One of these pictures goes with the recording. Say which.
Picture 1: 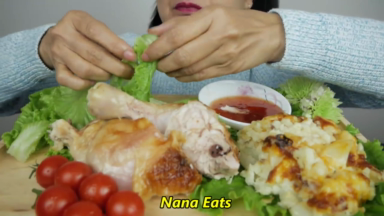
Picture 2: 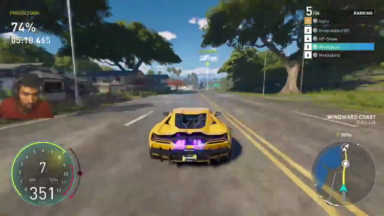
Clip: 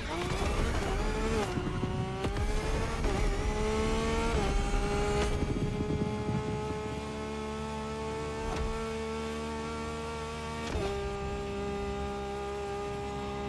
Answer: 2